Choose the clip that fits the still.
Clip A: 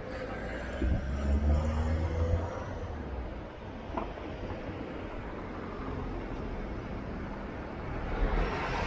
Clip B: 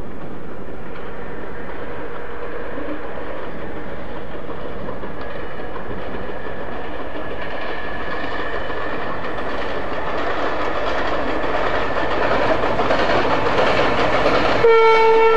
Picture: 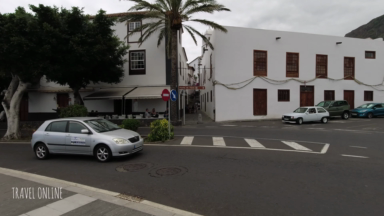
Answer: A